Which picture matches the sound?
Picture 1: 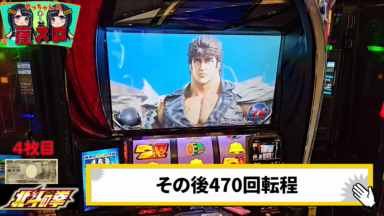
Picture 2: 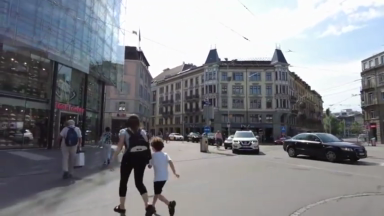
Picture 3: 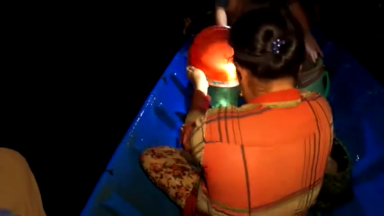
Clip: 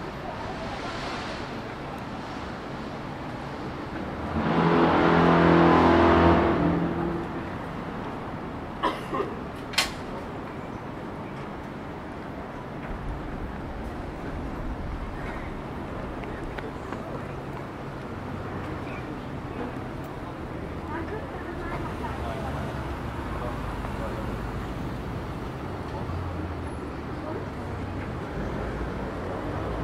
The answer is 2